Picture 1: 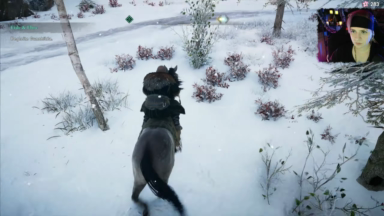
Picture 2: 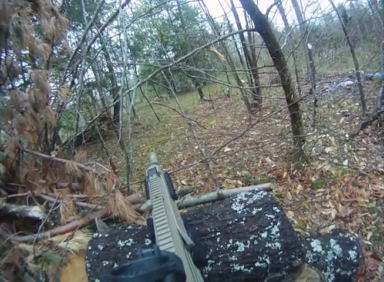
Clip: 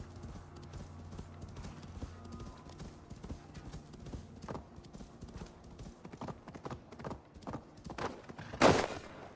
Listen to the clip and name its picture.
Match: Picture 1